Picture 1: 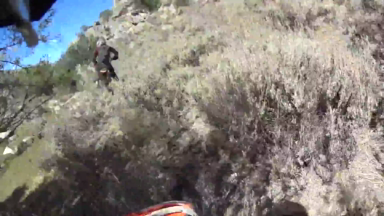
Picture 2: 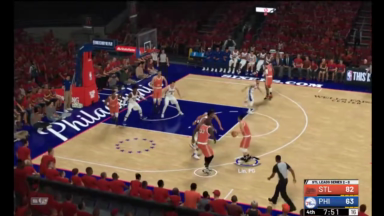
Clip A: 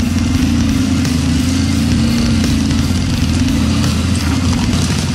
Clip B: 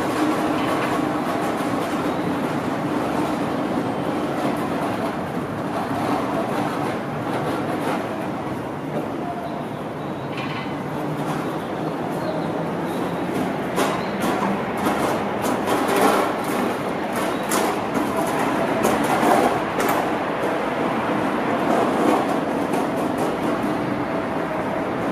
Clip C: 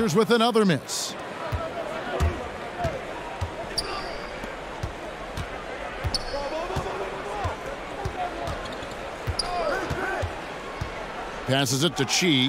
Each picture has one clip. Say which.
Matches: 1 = A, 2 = C